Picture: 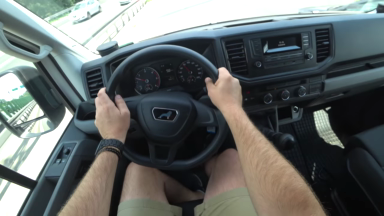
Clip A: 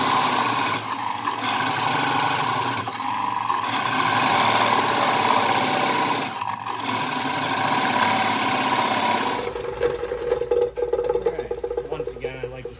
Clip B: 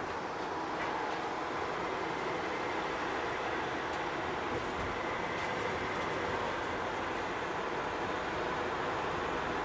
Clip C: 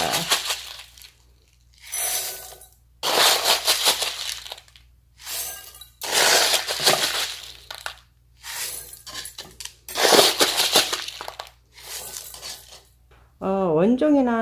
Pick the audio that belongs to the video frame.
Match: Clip B